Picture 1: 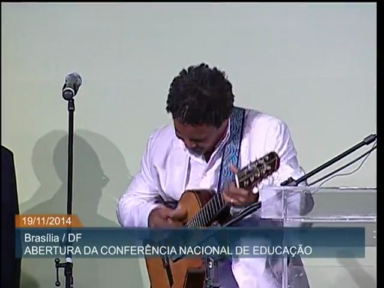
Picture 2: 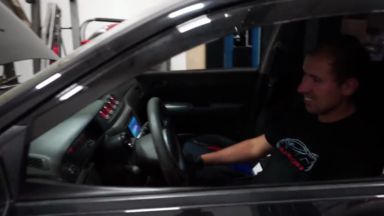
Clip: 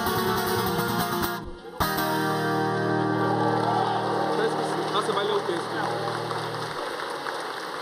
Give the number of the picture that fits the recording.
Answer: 1